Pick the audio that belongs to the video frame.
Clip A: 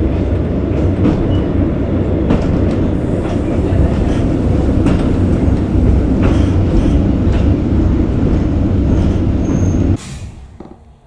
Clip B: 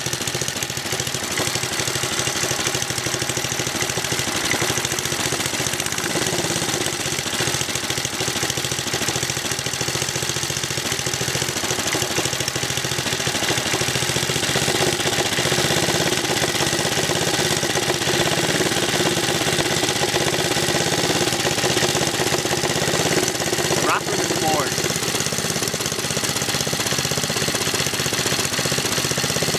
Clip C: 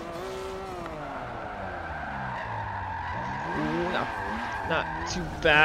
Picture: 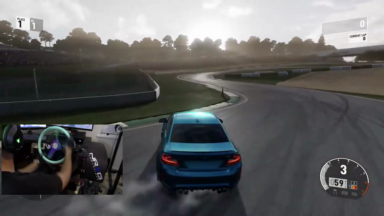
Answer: C